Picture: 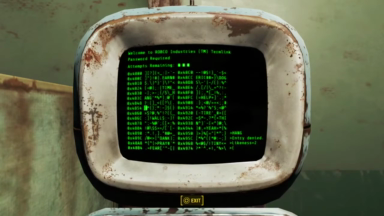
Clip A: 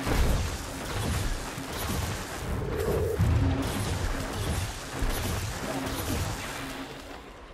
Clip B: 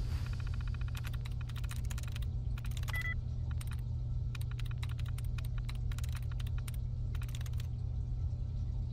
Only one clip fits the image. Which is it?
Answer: B